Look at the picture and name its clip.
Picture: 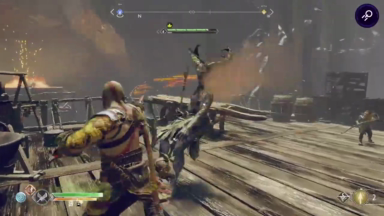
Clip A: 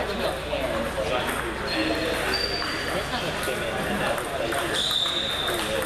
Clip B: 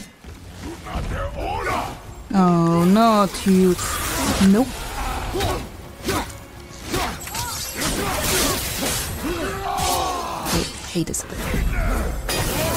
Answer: B